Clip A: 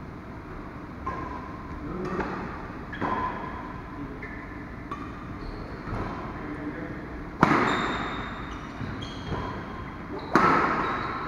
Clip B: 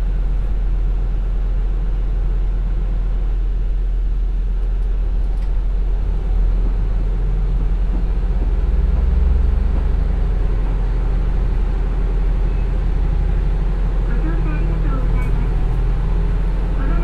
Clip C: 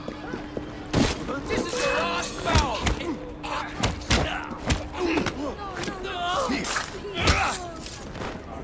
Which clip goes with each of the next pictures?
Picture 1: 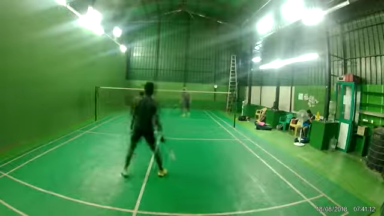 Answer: A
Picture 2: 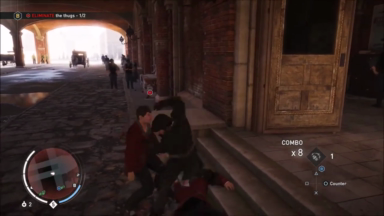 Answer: C